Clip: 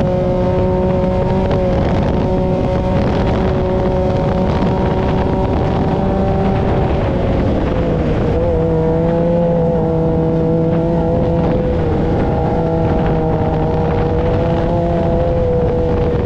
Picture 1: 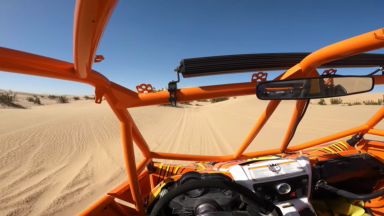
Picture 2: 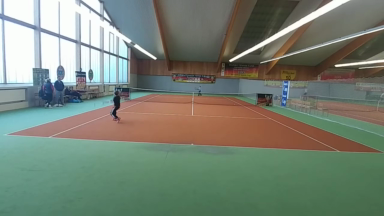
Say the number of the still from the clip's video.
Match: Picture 1